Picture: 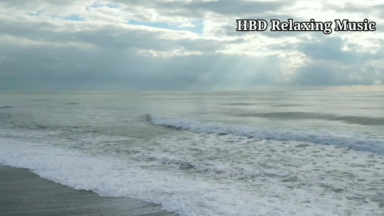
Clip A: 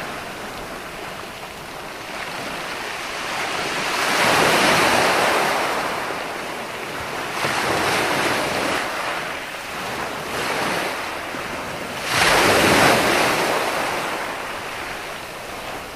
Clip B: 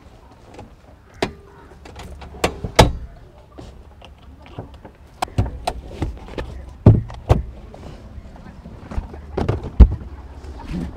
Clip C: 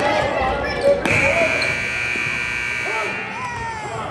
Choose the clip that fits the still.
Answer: A